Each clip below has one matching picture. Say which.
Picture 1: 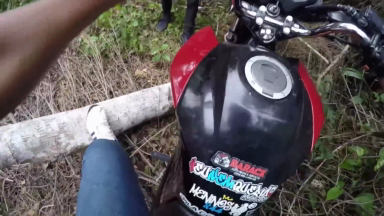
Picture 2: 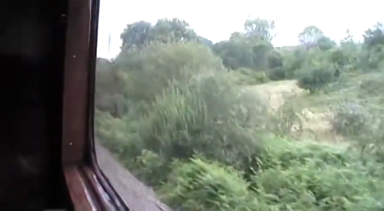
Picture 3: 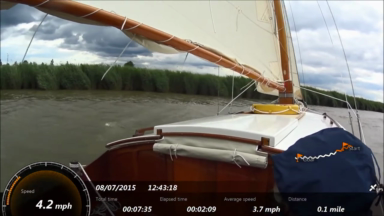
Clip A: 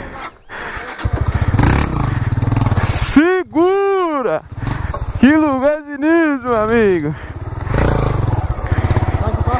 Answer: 1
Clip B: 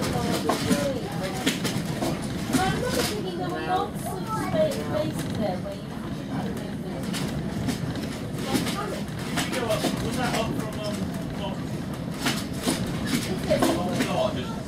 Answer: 2